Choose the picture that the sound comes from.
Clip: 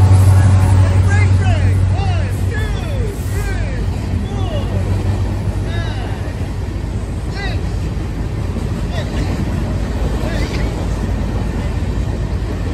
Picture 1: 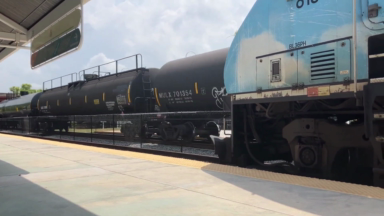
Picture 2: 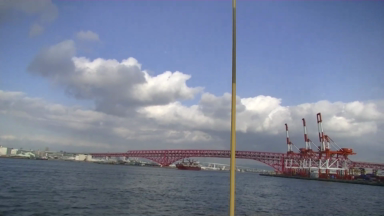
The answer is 1